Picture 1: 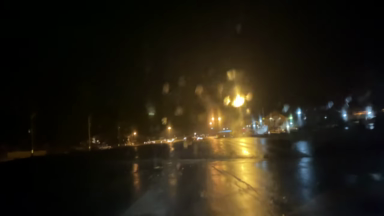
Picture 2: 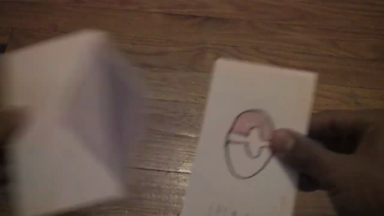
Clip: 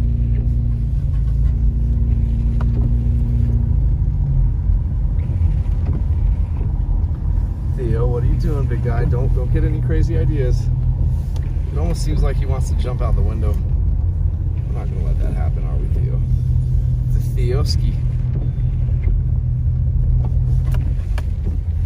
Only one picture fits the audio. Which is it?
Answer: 1